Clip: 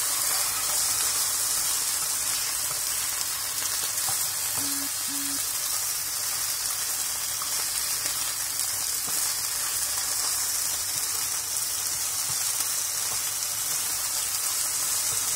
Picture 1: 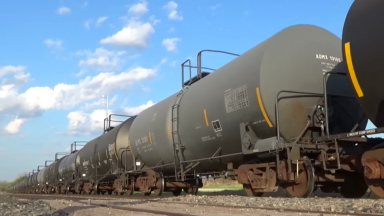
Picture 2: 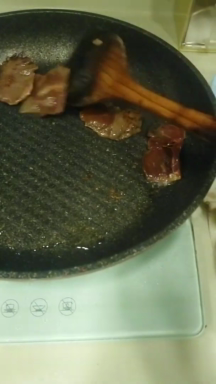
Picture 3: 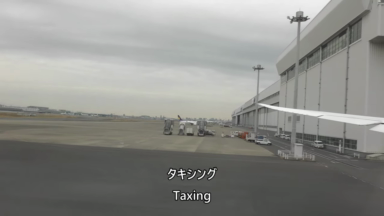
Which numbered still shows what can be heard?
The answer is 2